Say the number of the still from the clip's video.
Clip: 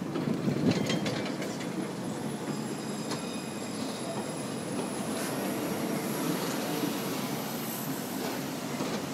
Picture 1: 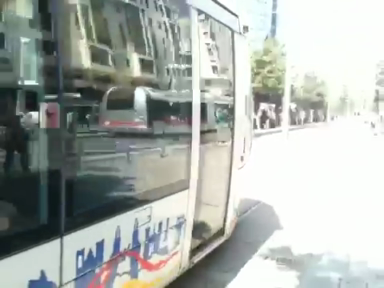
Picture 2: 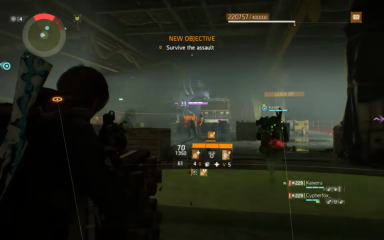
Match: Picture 1